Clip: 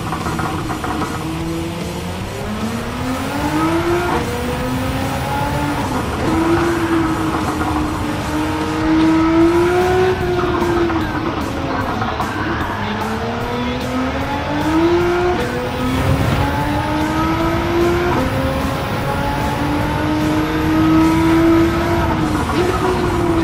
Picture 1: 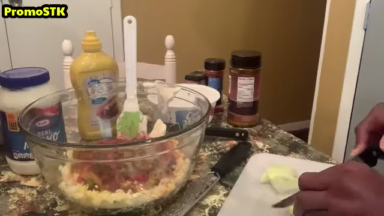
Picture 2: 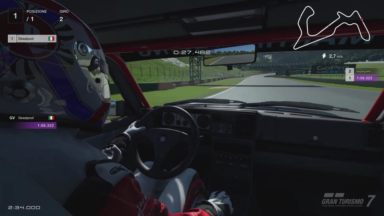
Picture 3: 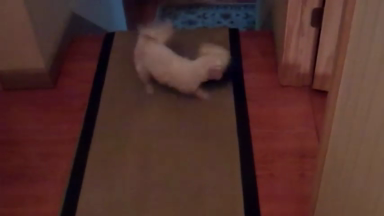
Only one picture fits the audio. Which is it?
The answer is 2